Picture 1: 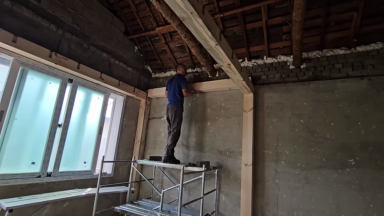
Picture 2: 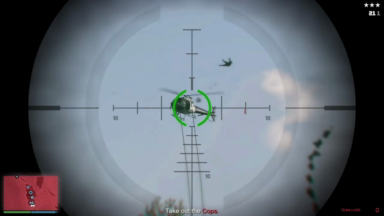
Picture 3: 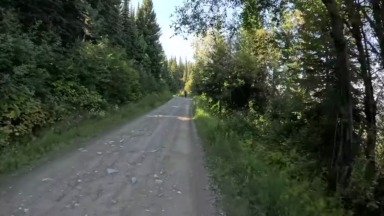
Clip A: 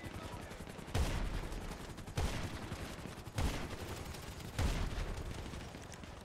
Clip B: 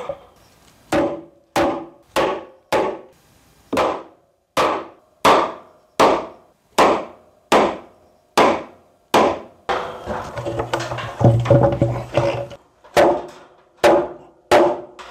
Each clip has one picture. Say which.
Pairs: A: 2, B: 1